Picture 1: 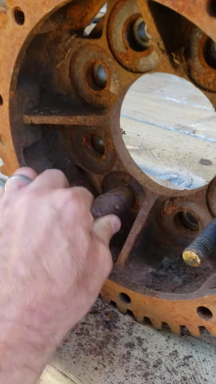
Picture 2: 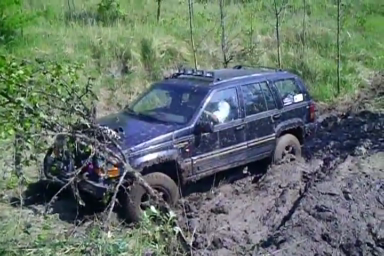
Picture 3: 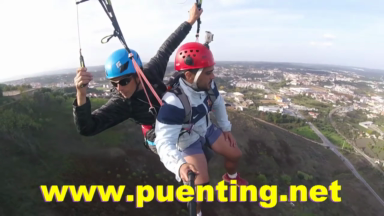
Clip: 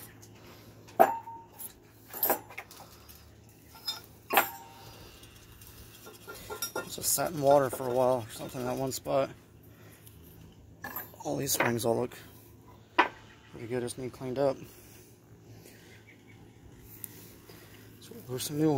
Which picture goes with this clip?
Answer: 1